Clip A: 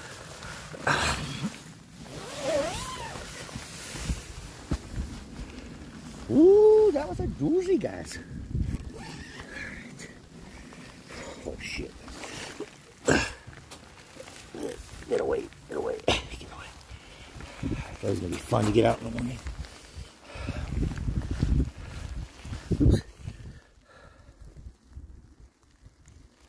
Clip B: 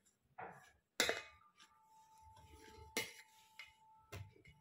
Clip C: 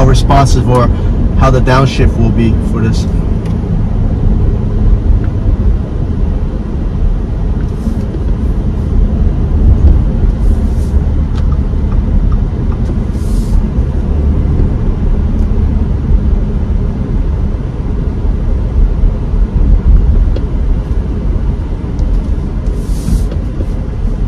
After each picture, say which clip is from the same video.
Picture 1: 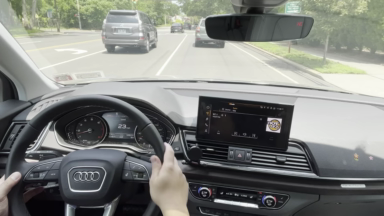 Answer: C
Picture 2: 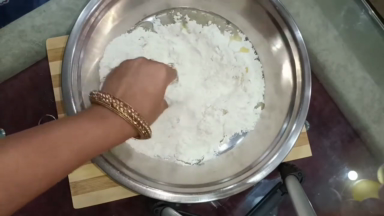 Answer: B